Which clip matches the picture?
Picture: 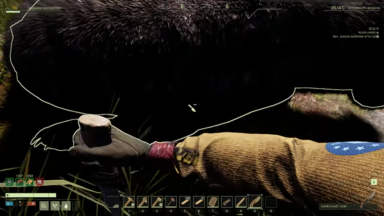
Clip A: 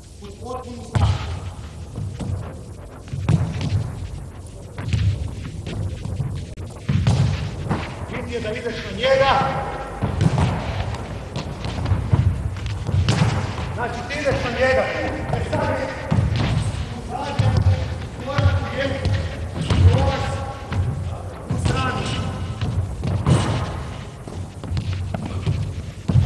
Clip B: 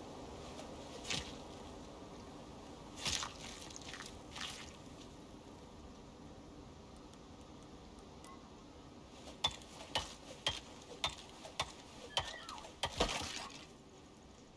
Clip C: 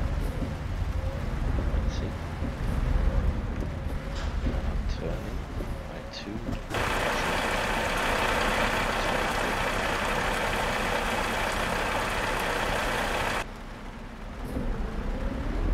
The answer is B